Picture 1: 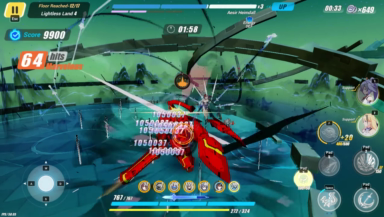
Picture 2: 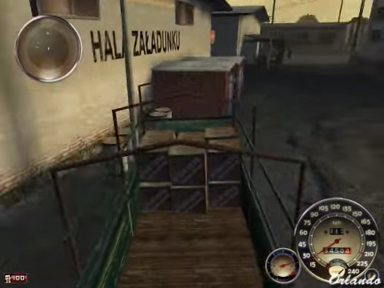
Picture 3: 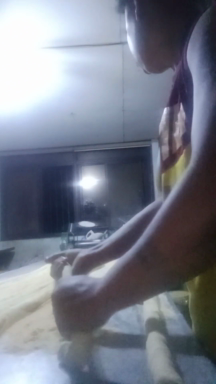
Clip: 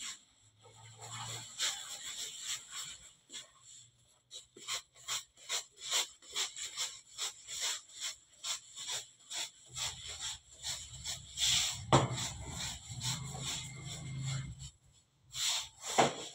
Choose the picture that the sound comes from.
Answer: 3